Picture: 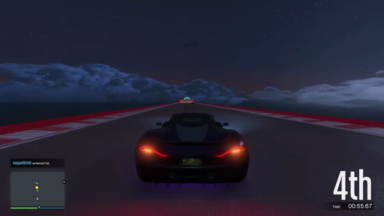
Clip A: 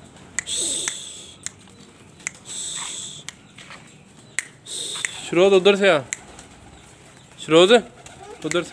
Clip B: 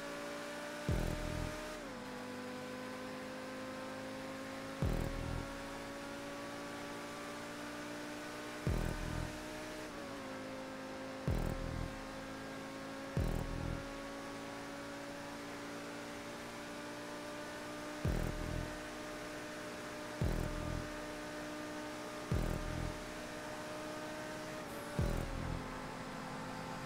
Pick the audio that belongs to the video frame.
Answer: B